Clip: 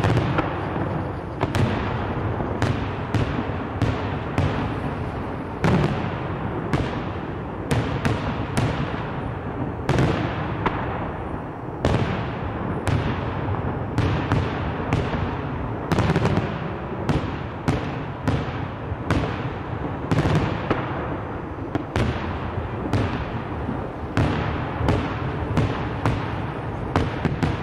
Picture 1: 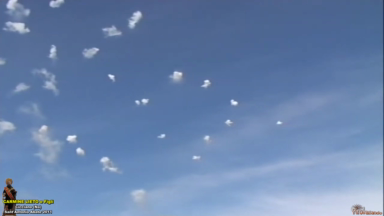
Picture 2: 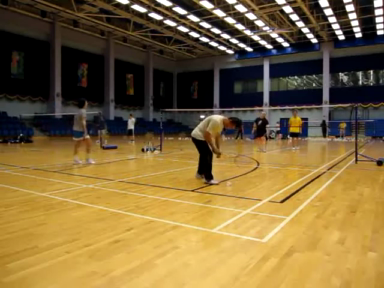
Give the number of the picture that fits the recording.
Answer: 1